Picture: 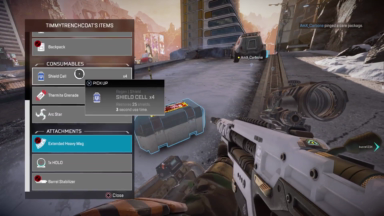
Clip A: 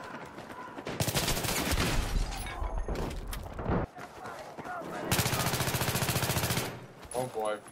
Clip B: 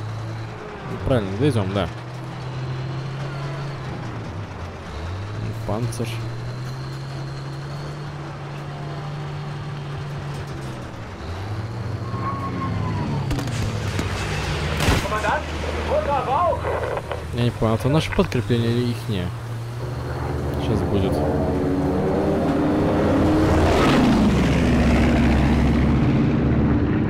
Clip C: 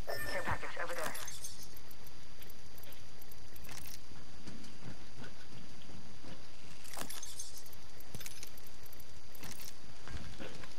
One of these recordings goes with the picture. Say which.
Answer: C